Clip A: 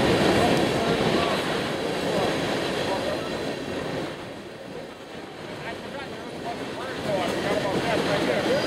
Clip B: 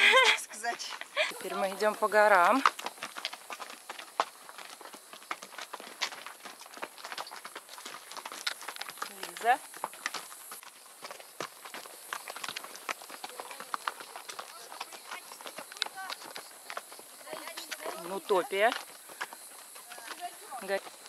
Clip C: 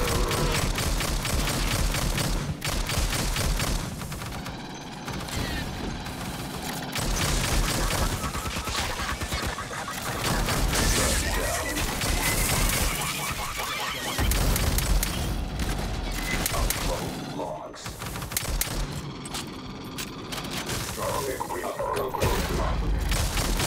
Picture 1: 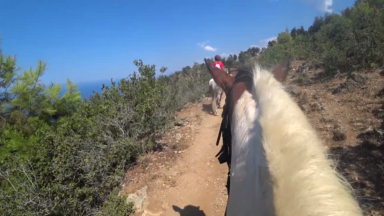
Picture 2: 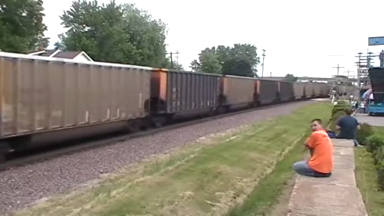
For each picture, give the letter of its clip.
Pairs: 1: B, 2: A